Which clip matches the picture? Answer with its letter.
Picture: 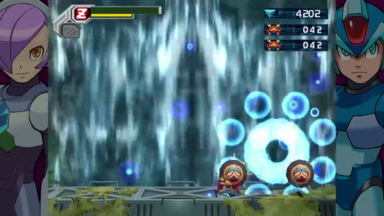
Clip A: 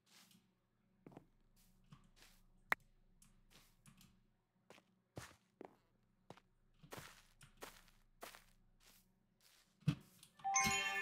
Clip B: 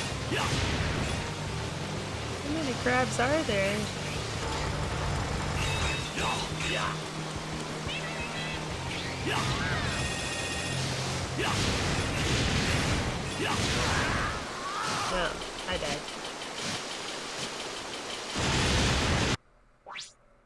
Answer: B